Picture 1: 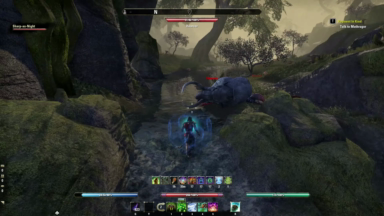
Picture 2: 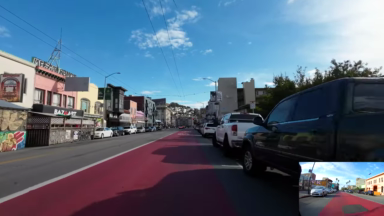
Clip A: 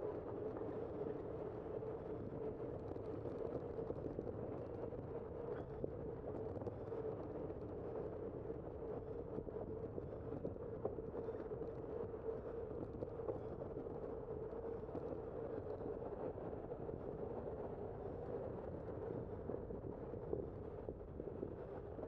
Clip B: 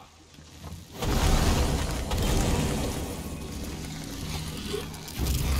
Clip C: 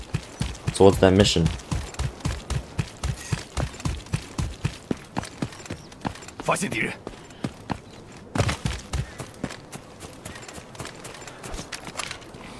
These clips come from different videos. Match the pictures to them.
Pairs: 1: B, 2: A